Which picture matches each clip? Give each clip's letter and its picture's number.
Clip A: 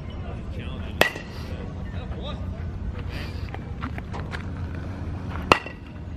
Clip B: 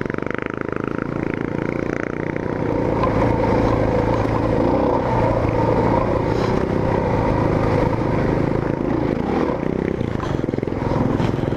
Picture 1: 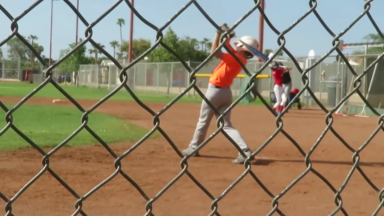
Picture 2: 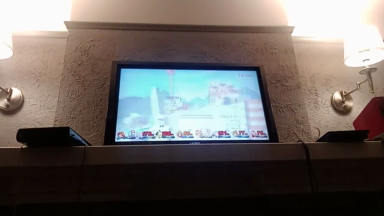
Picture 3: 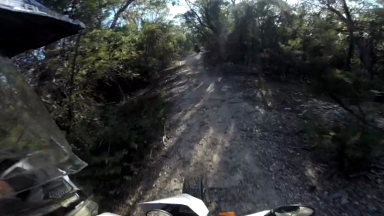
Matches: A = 1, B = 3